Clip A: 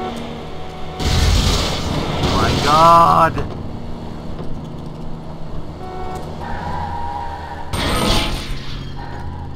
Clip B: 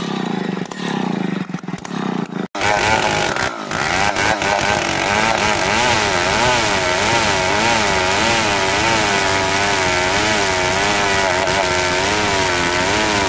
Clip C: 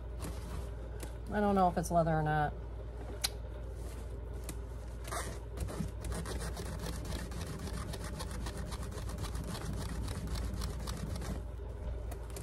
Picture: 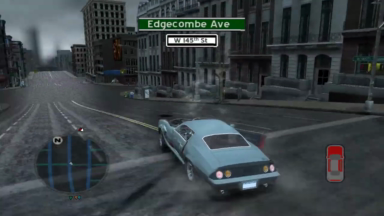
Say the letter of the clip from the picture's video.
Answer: A